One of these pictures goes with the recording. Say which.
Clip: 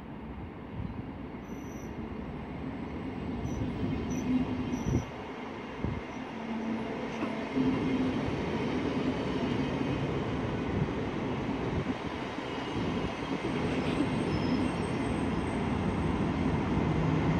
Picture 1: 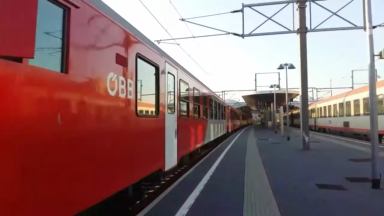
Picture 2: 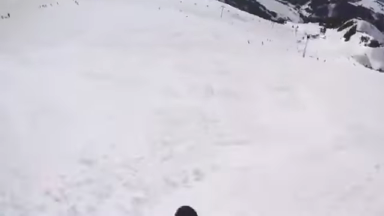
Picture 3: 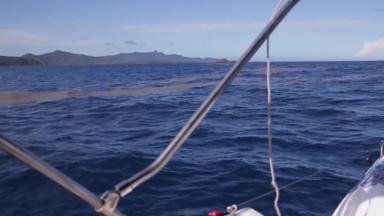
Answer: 1